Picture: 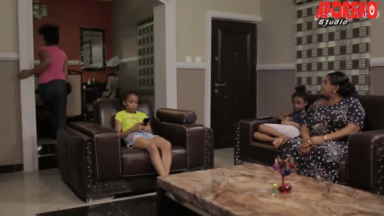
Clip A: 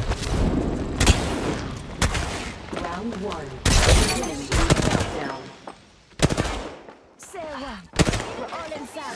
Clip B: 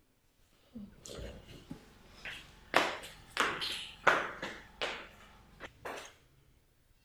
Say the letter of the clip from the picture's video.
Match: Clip B